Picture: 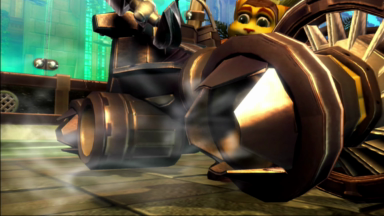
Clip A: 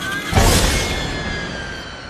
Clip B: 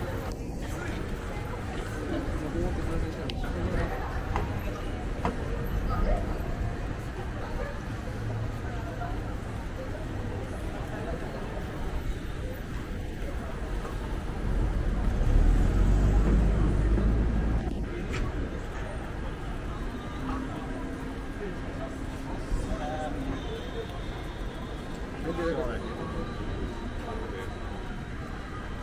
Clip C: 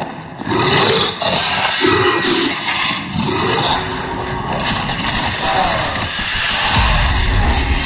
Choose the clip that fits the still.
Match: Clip A